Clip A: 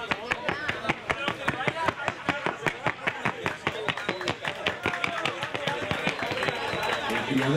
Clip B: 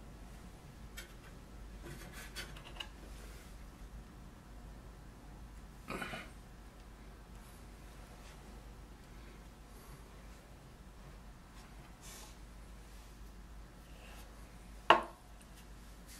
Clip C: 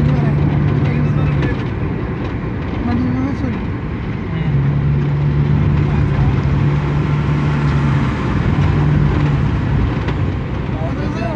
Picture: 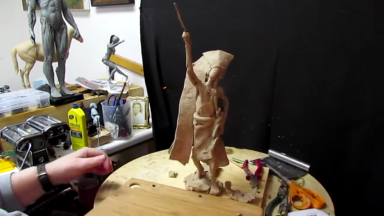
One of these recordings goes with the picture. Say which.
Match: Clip B